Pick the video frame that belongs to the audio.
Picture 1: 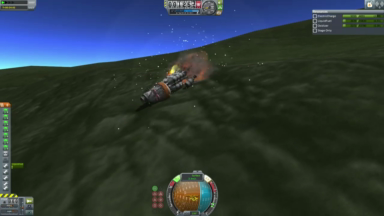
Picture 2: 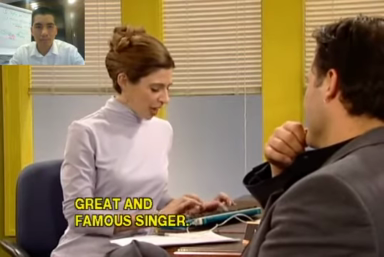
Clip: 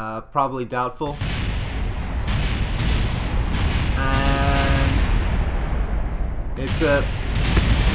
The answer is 1